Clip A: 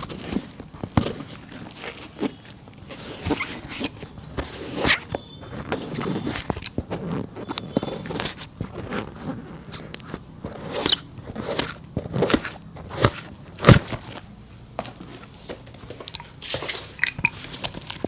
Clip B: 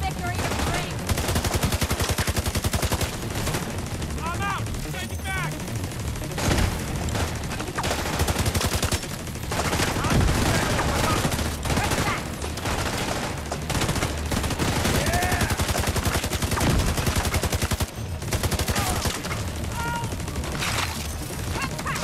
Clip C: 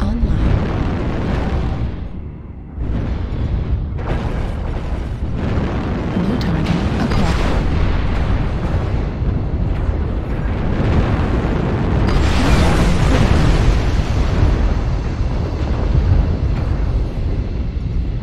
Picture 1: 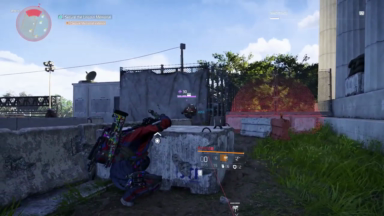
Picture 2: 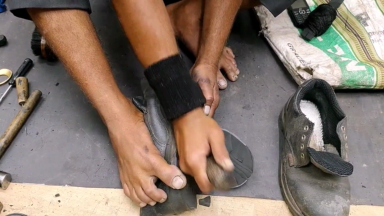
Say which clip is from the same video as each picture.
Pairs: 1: B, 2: A